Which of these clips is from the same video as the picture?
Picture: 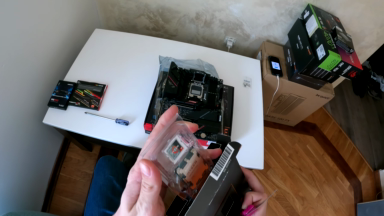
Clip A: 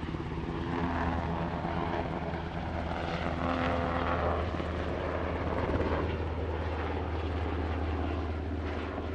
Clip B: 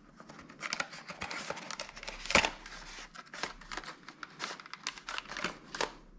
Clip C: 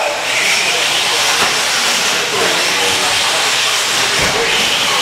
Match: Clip B